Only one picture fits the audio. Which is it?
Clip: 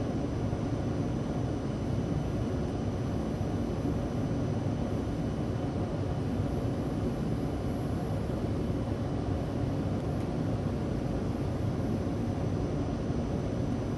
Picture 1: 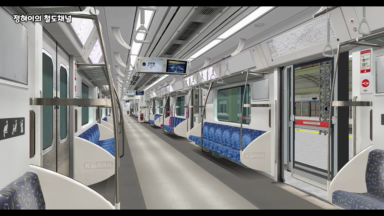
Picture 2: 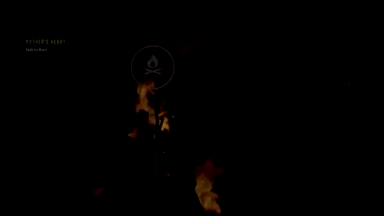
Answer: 1